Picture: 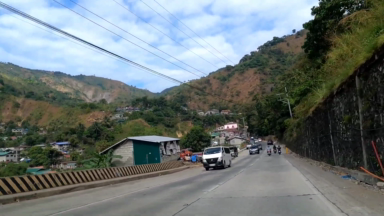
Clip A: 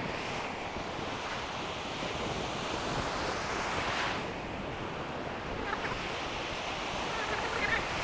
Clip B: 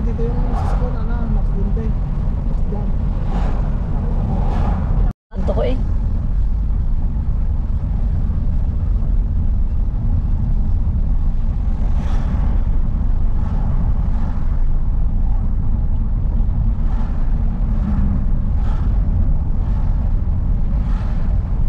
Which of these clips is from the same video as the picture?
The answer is B